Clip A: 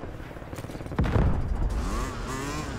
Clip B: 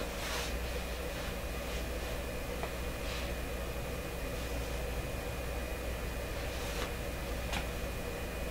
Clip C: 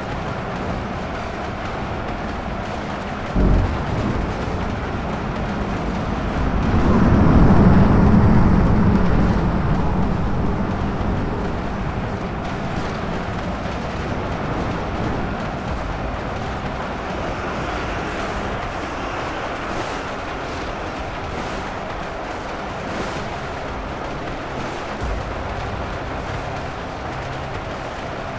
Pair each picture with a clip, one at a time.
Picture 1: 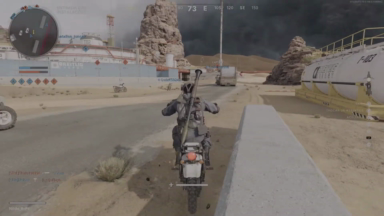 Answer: A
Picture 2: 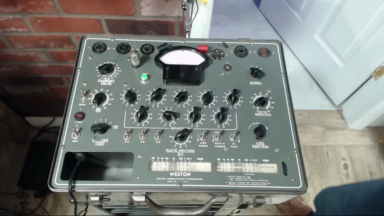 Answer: B